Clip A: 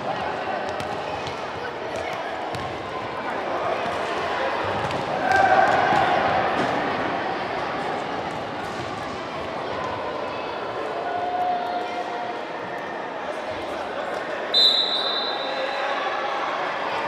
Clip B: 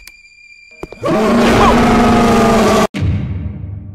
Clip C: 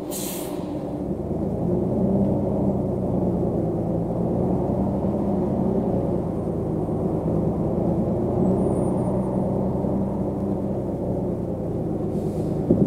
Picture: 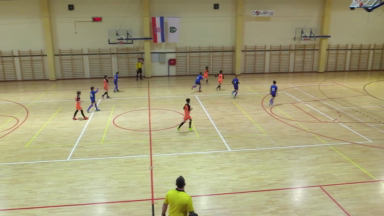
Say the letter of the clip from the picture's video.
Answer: A